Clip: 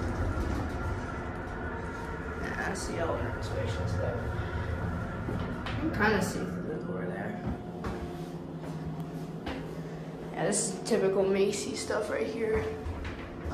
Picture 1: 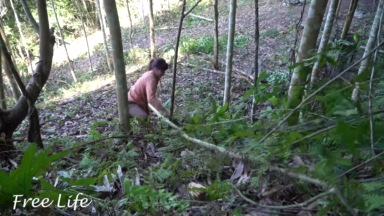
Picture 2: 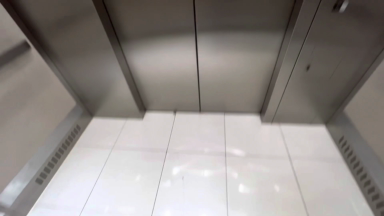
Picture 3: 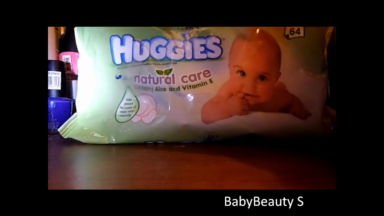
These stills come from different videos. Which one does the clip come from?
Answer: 2